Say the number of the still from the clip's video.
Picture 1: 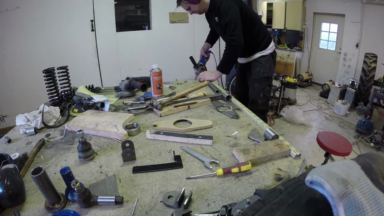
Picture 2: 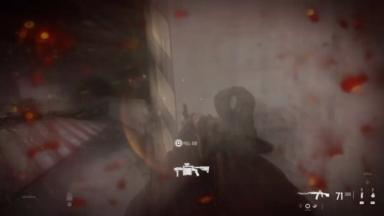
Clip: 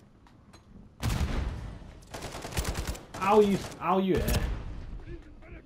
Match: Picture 2